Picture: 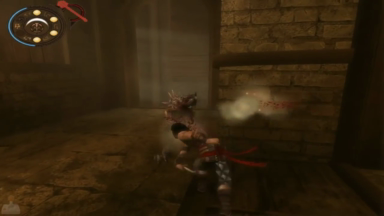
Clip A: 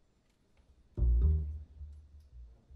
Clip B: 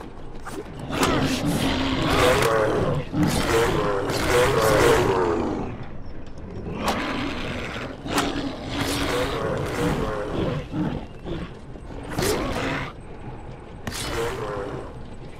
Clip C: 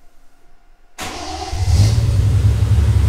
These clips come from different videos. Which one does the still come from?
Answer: B